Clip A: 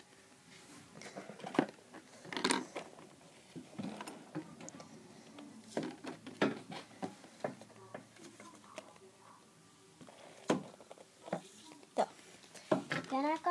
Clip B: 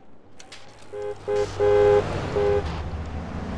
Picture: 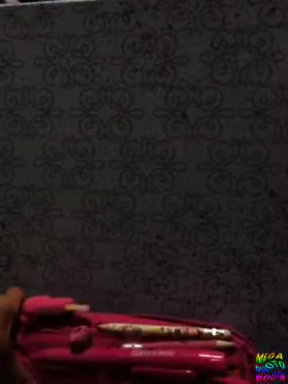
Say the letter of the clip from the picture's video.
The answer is A